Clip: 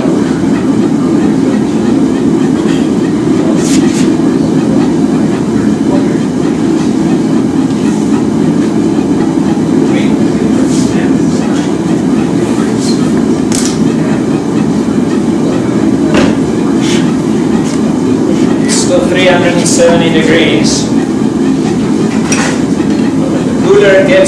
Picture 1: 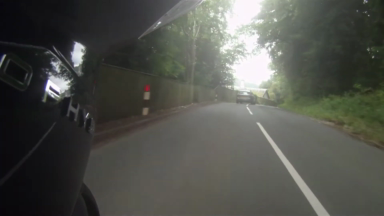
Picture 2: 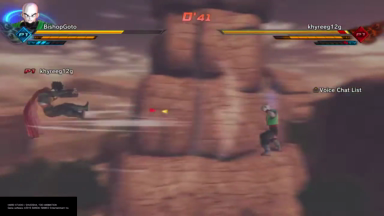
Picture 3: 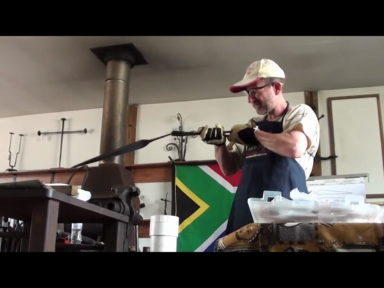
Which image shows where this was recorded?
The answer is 3